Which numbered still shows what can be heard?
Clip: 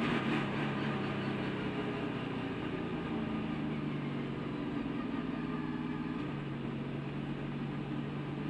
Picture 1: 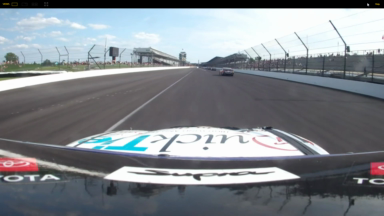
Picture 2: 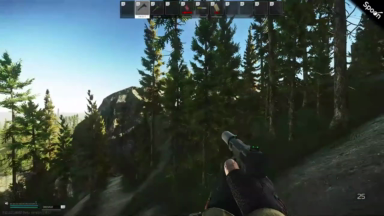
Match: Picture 1